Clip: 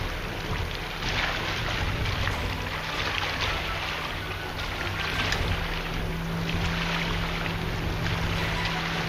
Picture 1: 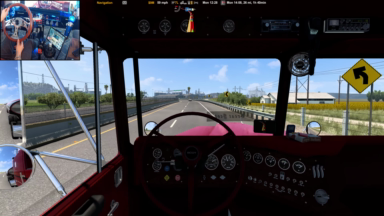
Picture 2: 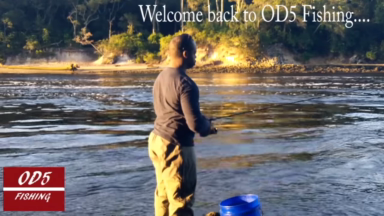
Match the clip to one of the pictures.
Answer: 2